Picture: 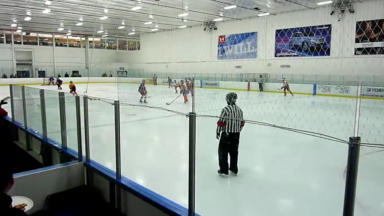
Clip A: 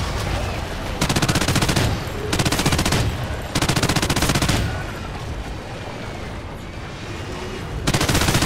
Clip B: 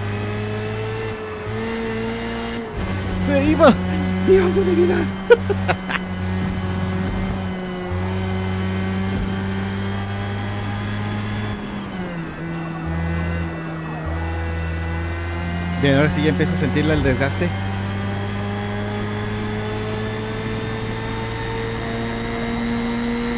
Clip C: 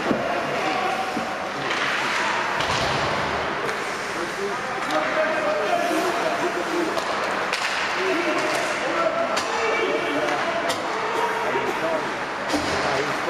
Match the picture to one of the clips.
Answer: C